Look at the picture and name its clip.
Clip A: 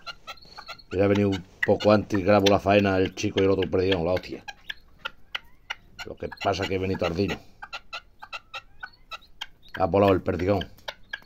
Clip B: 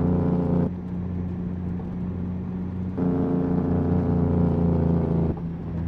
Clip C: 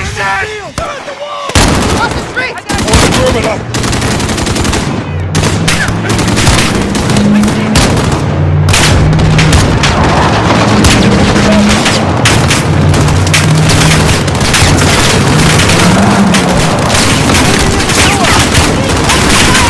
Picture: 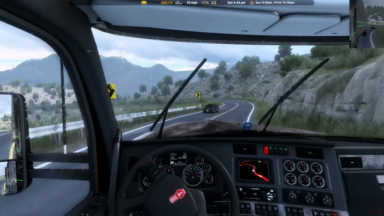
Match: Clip B